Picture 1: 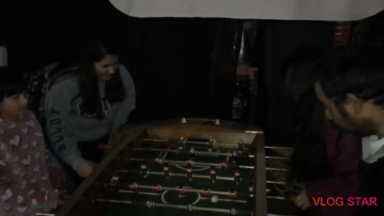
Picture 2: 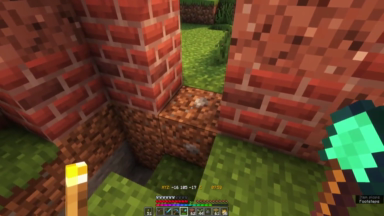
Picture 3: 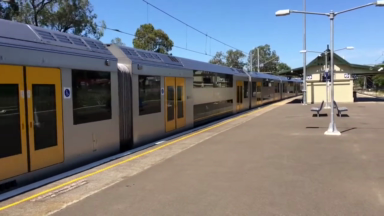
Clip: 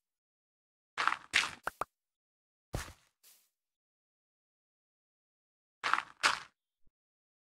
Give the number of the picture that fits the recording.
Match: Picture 2